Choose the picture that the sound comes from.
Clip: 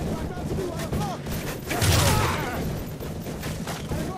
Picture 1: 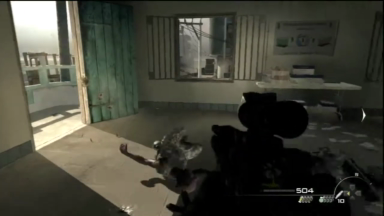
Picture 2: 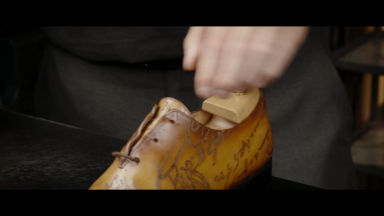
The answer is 1